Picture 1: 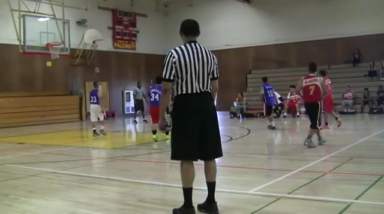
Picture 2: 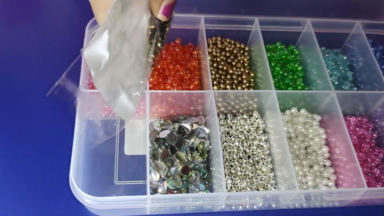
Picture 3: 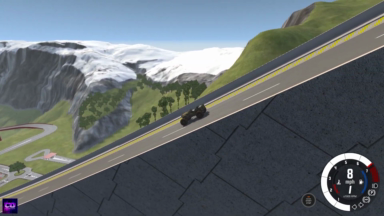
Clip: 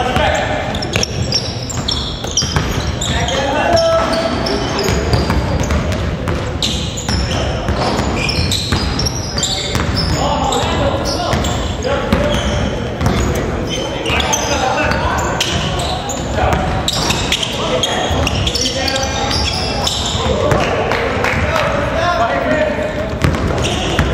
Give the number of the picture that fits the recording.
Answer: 1